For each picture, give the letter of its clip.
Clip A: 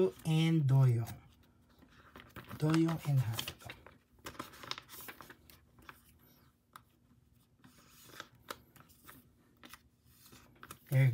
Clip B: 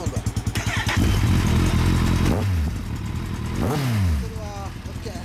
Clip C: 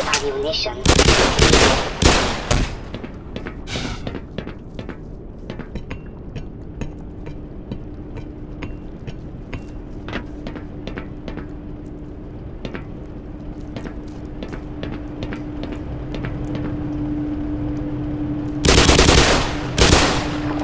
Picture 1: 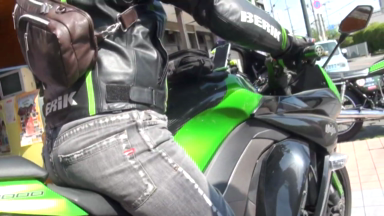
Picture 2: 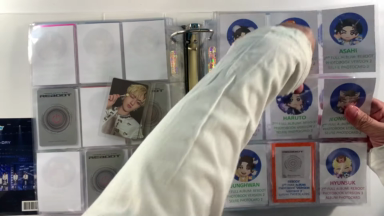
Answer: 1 B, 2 A